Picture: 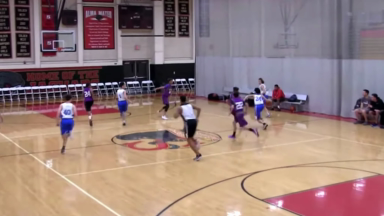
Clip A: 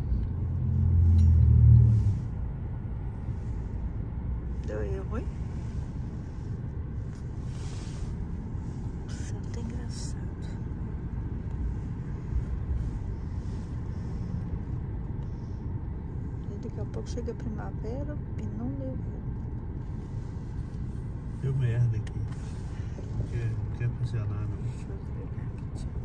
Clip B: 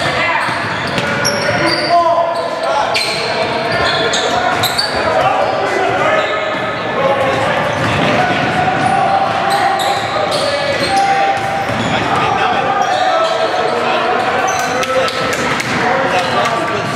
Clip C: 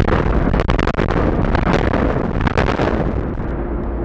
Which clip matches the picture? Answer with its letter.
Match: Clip B